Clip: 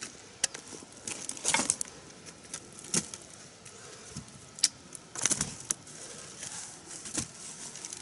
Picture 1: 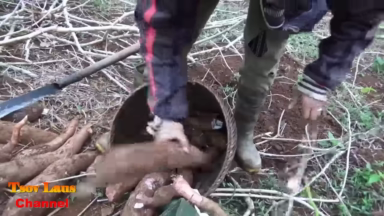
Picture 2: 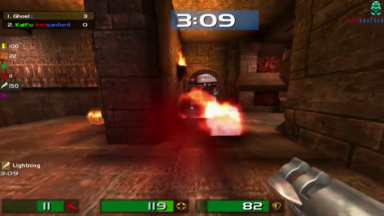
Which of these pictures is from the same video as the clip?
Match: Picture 1